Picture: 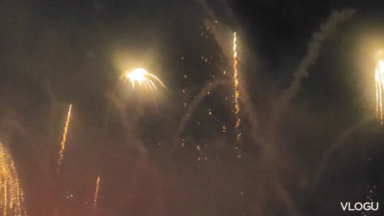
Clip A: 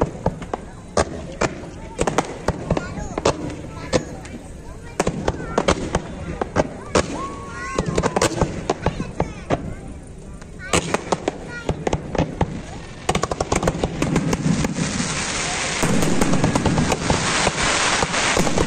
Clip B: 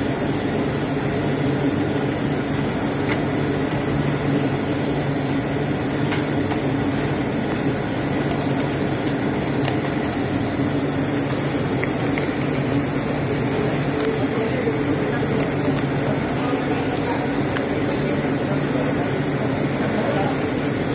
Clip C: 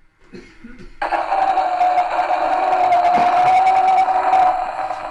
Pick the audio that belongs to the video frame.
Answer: A